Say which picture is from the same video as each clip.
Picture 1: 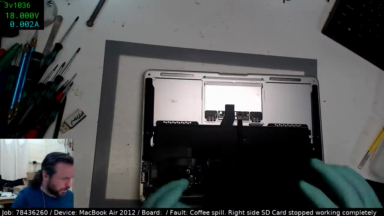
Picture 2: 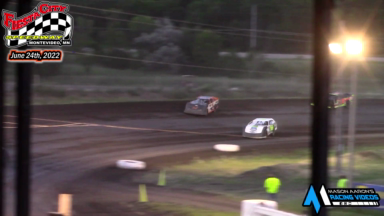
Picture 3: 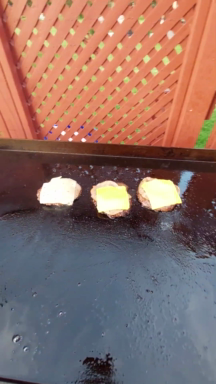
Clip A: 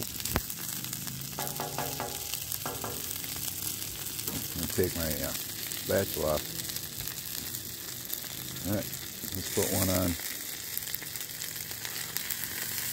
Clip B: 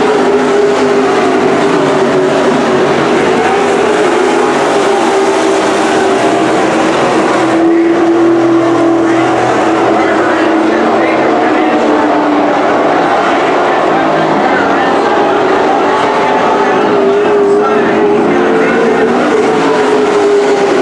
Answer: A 3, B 2